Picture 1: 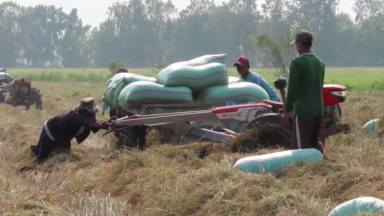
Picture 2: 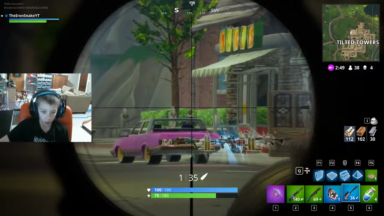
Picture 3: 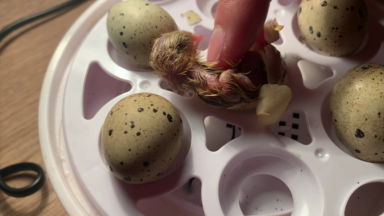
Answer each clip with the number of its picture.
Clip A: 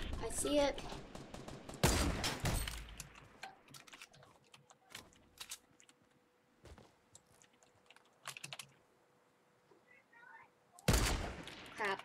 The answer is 2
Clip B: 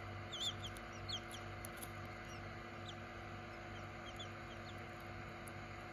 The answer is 3